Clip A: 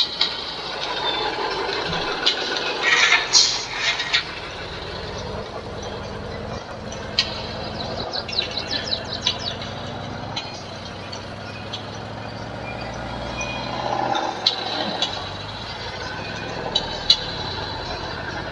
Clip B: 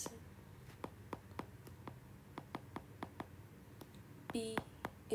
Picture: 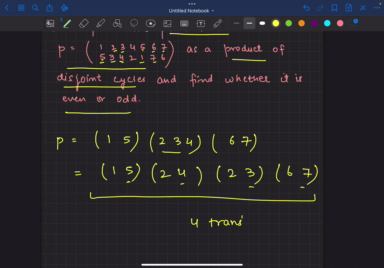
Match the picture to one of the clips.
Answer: B